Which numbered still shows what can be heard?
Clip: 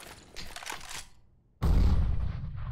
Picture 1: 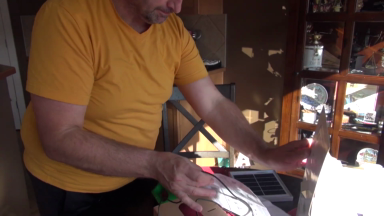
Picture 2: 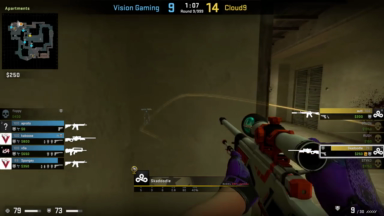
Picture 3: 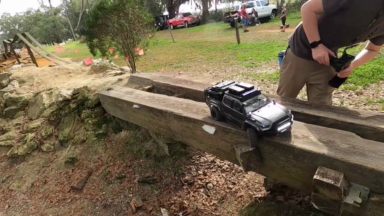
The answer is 2